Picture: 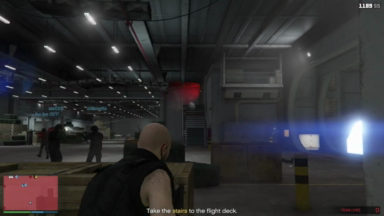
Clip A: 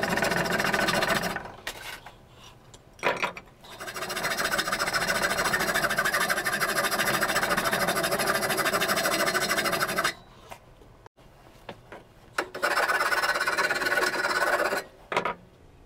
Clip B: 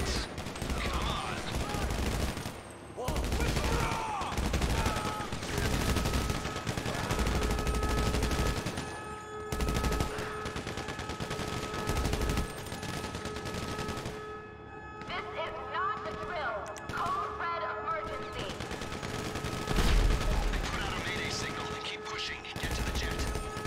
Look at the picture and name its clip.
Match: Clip B